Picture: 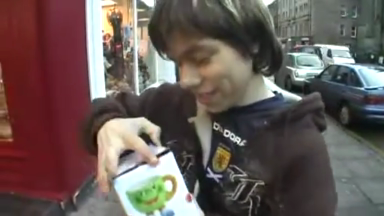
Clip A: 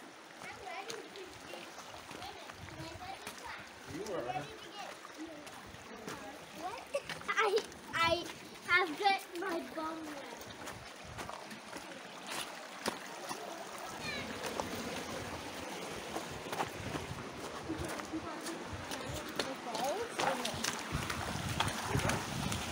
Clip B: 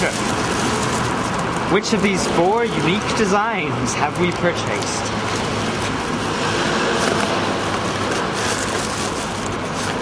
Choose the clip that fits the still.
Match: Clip B